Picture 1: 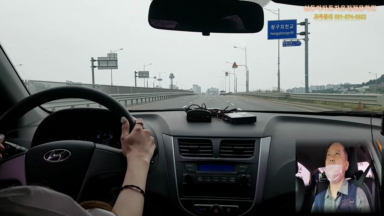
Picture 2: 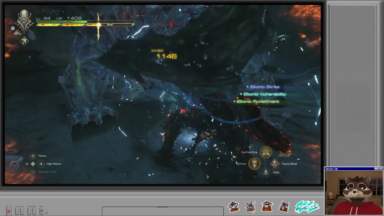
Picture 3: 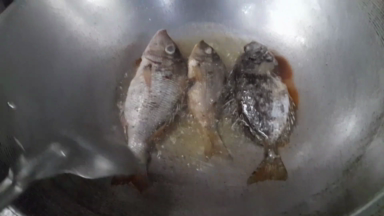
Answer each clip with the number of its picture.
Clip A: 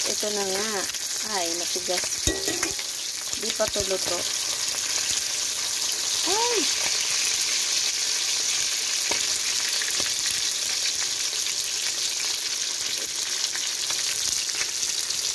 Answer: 3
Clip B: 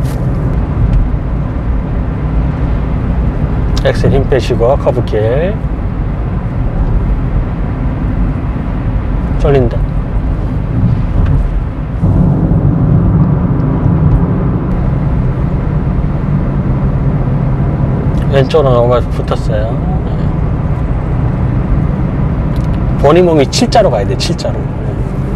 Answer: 1